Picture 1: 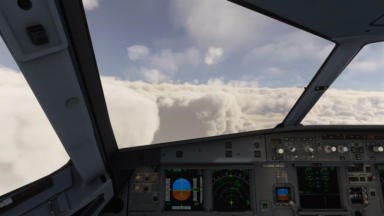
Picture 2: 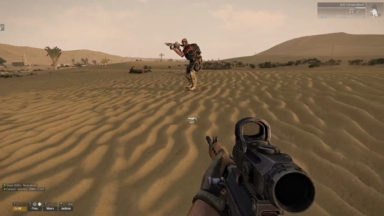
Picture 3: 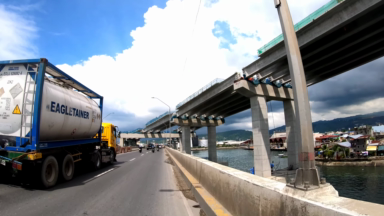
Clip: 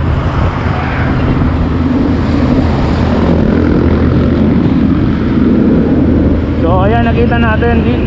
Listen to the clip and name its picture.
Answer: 3